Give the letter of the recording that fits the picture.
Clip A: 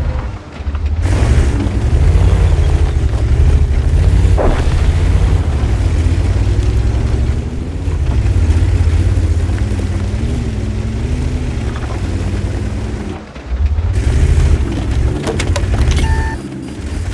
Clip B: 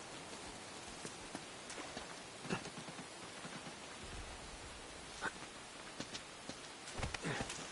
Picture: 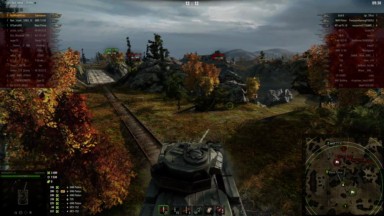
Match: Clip A